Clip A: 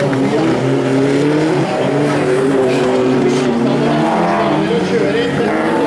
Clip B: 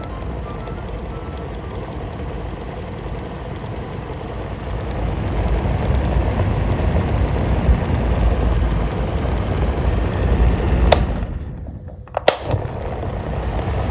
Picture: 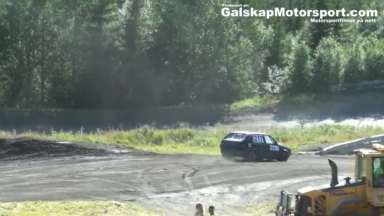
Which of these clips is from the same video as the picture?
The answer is A